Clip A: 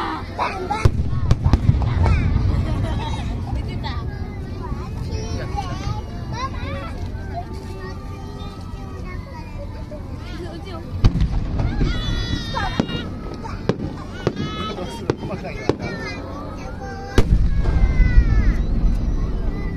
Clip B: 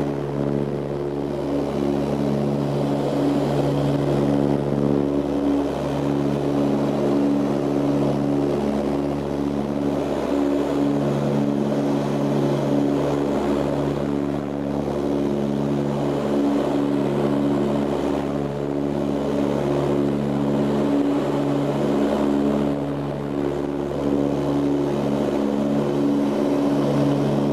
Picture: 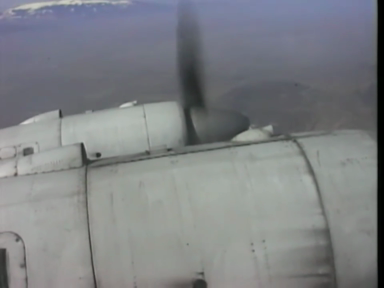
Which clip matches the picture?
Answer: B